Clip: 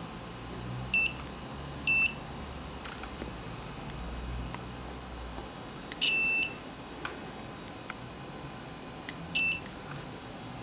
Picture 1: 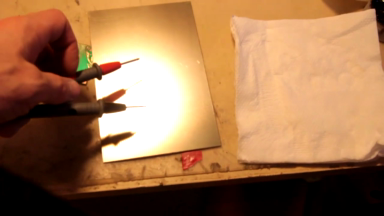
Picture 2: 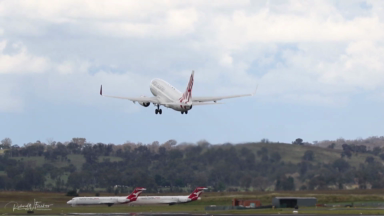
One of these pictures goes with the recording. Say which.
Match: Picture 1